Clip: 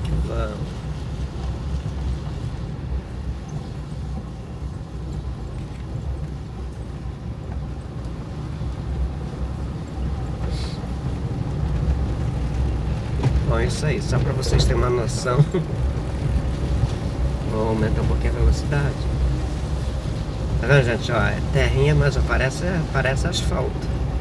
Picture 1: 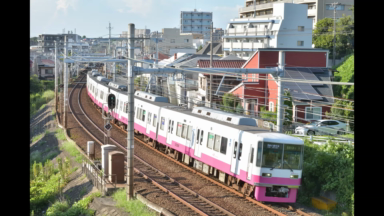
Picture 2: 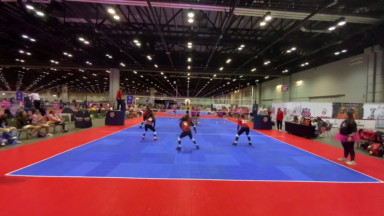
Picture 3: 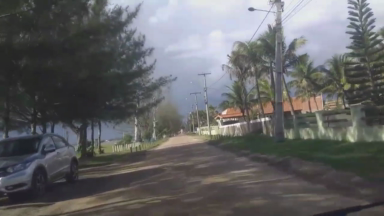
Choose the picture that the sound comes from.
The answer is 3